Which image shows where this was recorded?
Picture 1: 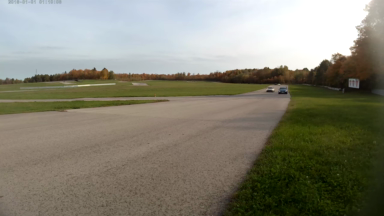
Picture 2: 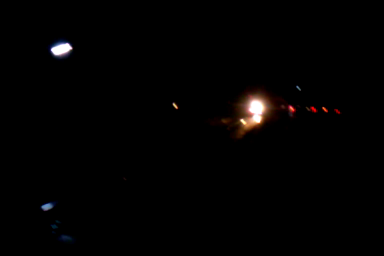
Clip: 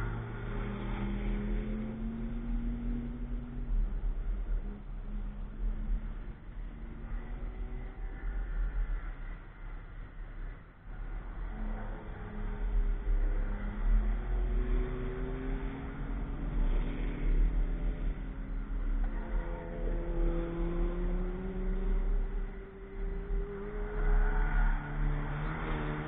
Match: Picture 1